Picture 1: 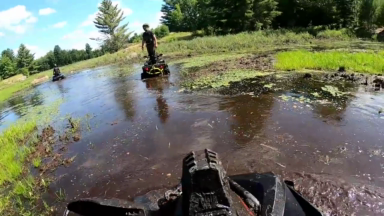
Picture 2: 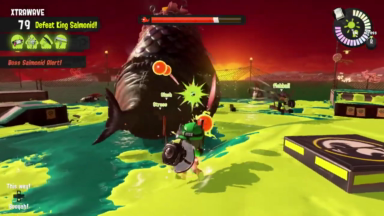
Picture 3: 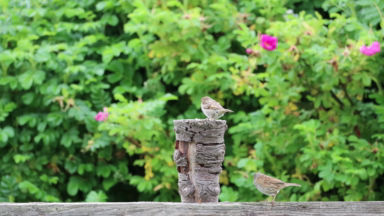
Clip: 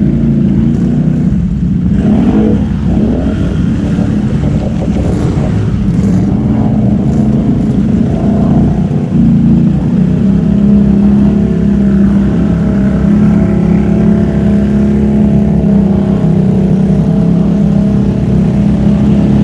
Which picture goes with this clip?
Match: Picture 1